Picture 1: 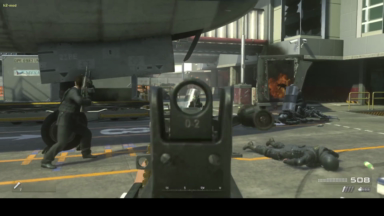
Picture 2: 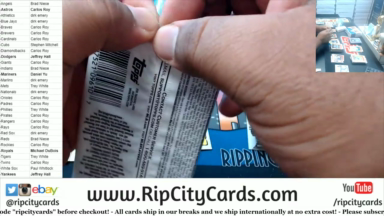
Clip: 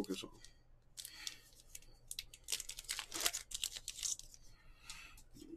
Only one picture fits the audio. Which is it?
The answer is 2